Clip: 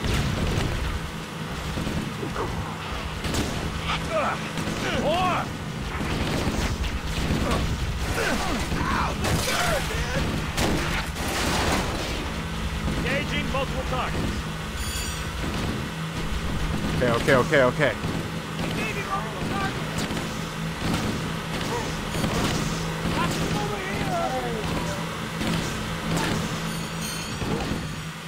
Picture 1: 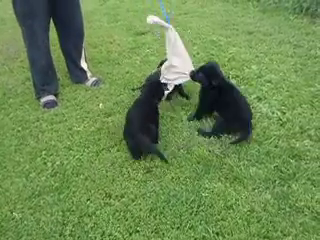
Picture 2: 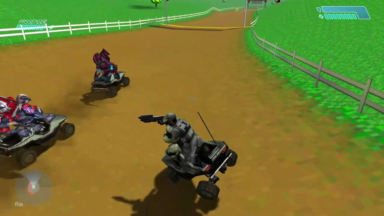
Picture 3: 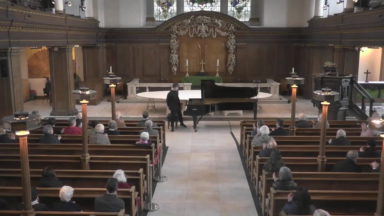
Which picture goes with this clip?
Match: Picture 2